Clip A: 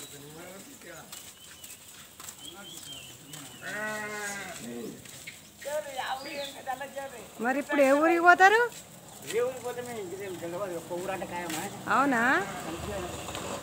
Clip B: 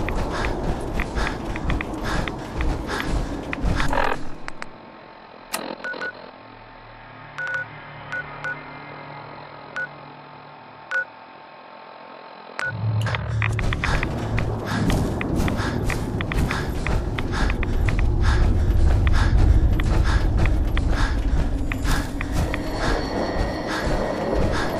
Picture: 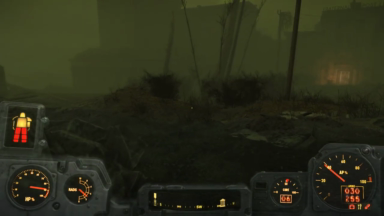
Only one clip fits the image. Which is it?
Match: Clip B